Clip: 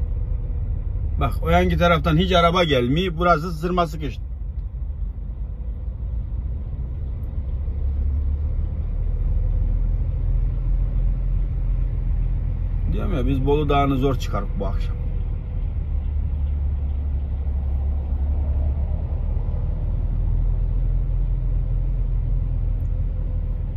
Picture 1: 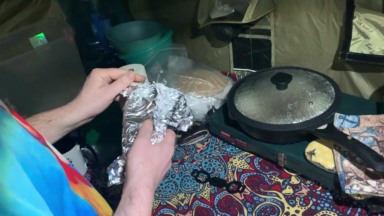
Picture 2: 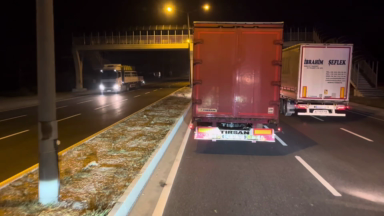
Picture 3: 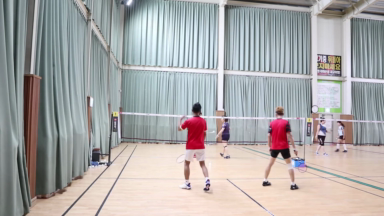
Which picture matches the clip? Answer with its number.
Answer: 2